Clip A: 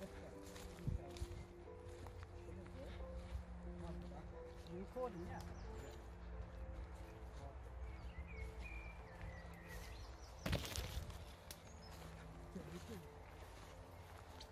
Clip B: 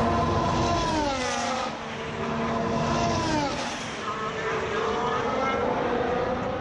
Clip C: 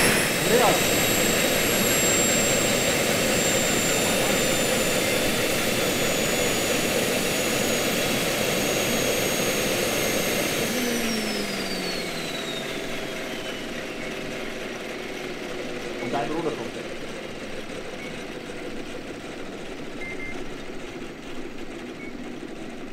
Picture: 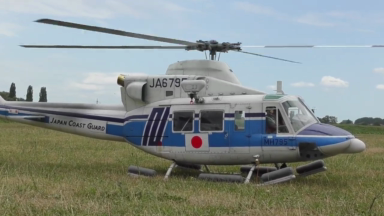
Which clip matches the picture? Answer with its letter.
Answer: C